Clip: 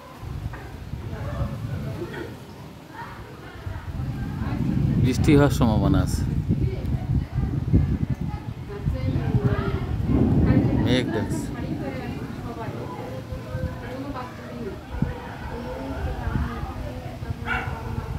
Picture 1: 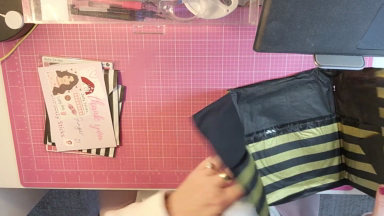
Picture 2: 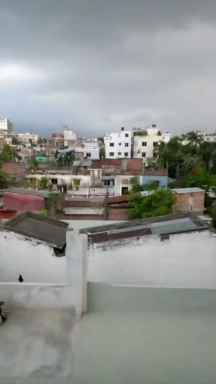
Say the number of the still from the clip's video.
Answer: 2